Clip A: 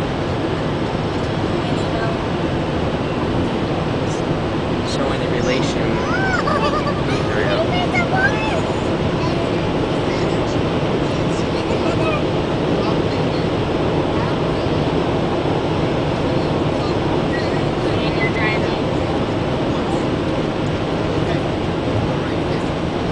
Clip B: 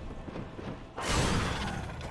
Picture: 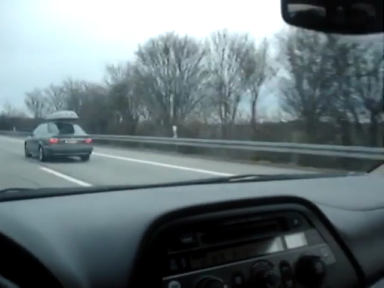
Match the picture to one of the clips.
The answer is A